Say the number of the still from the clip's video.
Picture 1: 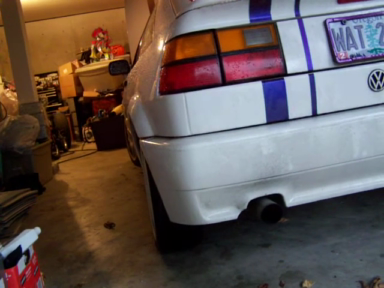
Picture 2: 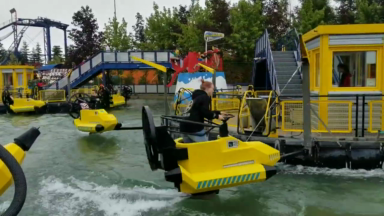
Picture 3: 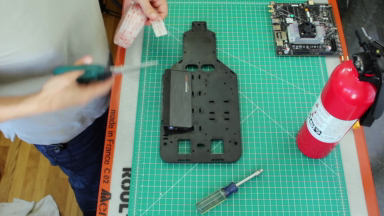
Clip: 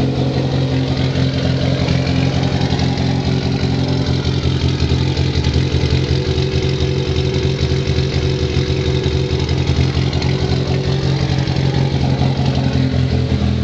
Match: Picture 1